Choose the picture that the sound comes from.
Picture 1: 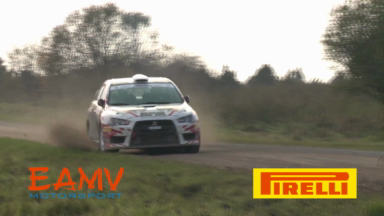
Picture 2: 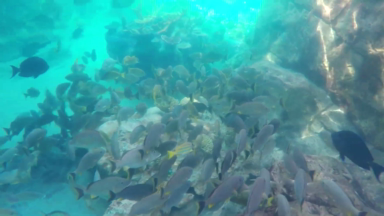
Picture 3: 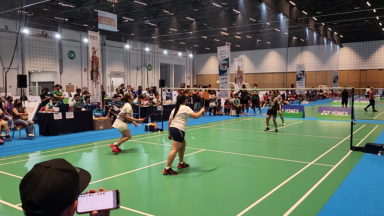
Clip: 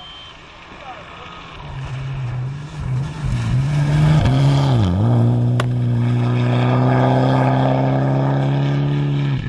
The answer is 1